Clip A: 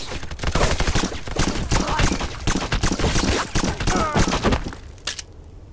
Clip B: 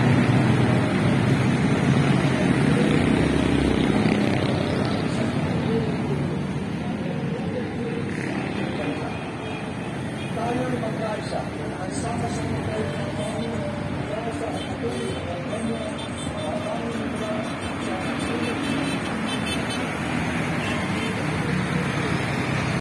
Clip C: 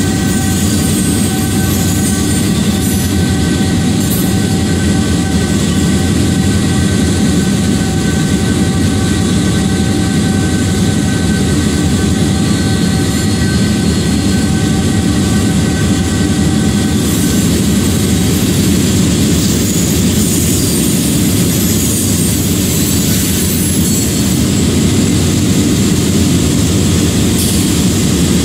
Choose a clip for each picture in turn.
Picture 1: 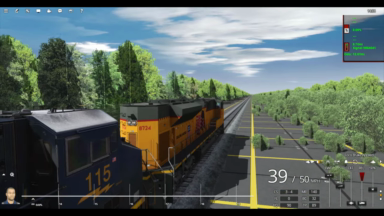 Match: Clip C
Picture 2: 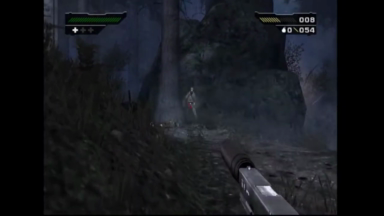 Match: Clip A